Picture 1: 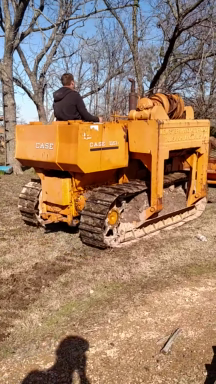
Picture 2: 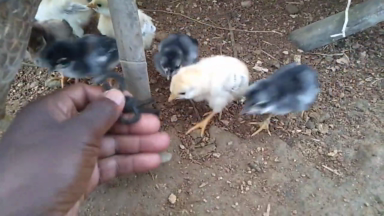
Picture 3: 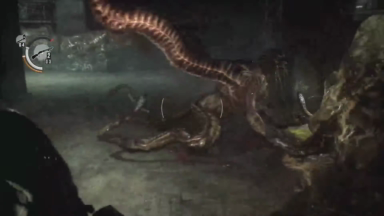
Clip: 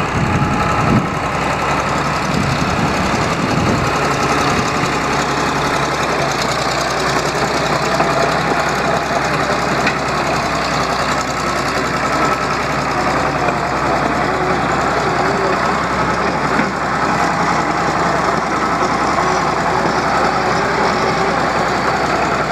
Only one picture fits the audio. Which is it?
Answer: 1